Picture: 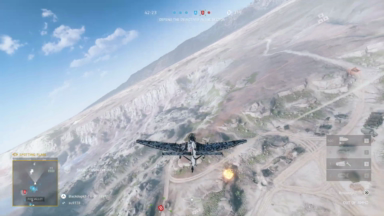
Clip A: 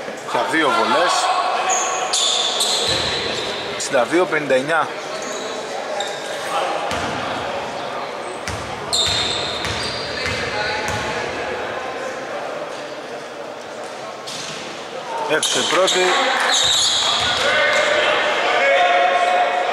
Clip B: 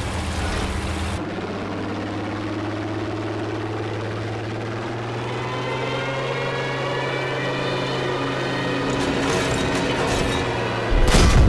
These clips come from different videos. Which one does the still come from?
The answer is B